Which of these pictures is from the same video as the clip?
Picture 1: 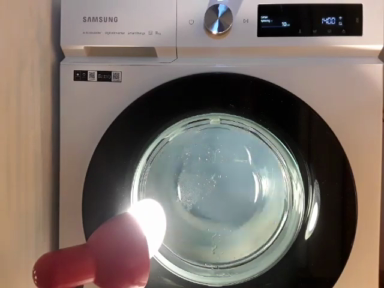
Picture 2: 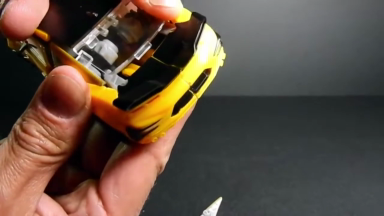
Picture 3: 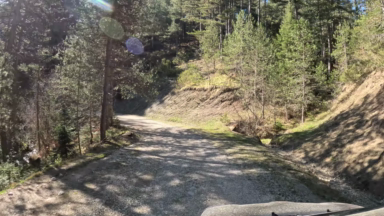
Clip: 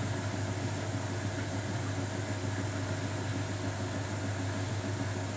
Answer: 1